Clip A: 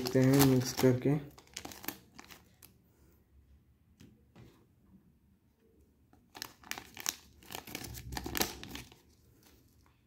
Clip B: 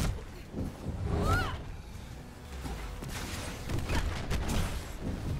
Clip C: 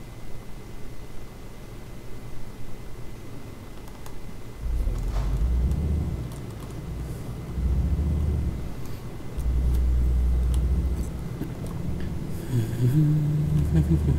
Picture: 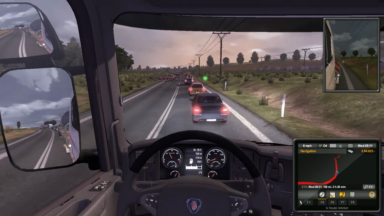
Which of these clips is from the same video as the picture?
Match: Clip C